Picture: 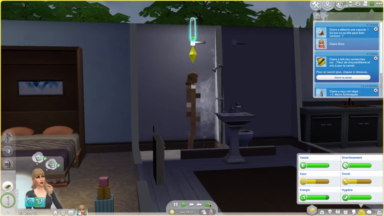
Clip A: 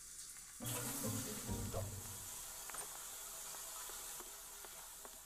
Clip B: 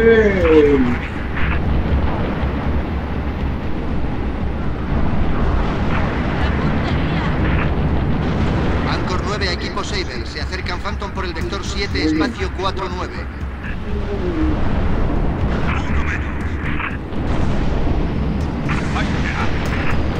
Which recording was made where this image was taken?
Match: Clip A